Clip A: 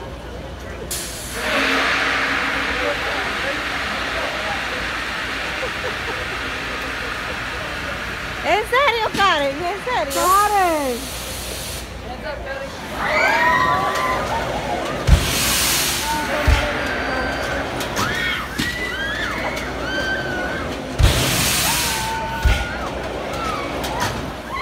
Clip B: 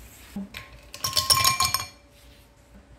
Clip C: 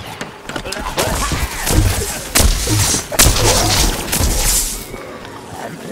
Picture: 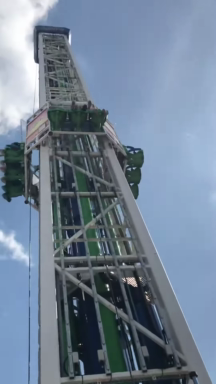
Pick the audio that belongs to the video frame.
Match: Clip A